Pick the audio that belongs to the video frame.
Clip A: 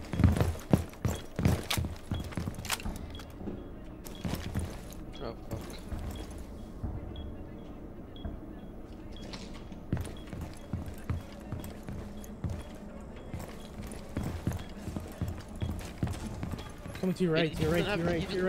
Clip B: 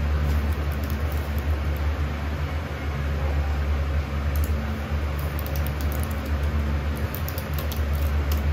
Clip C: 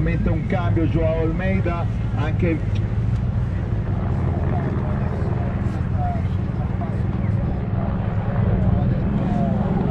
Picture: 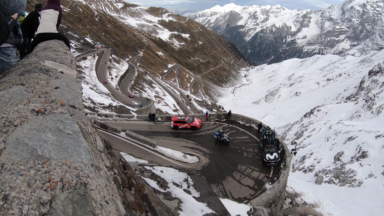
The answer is C